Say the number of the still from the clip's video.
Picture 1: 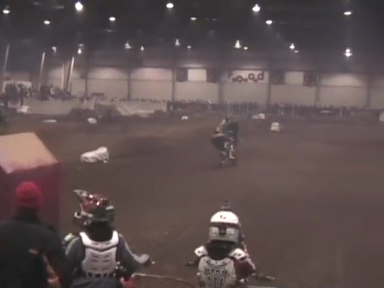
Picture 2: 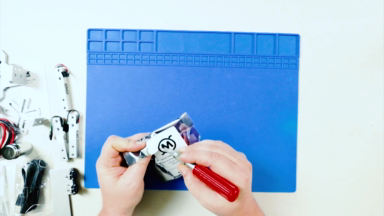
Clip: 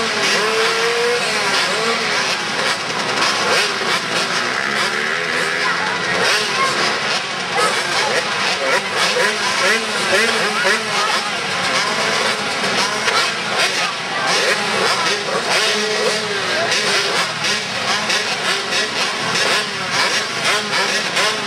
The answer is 1